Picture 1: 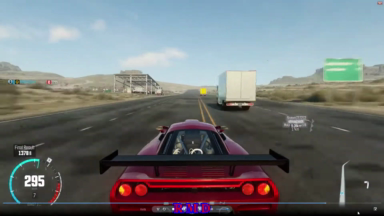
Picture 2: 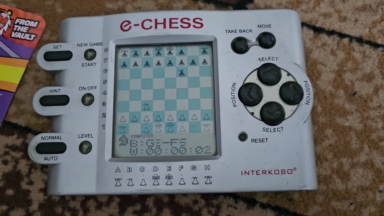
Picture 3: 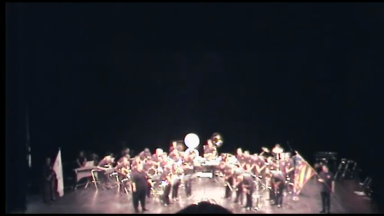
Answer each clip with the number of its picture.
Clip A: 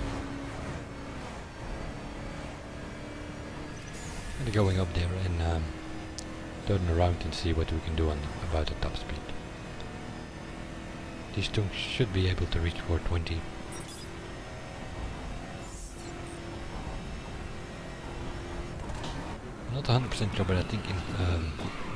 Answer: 1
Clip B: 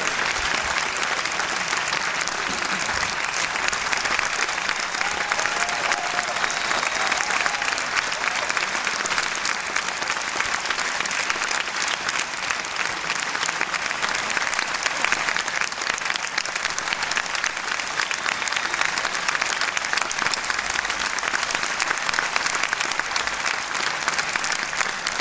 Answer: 3